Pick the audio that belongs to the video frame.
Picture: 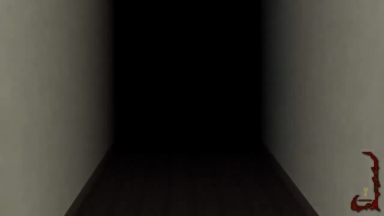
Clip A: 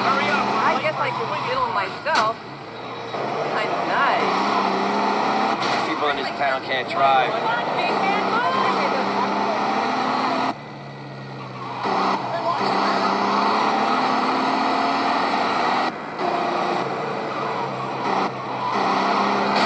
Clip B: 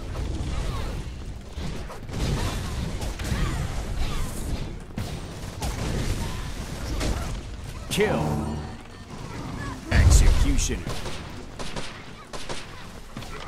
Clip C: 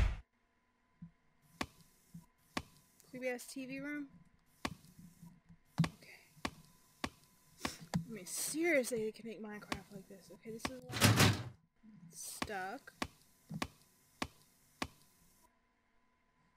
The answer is C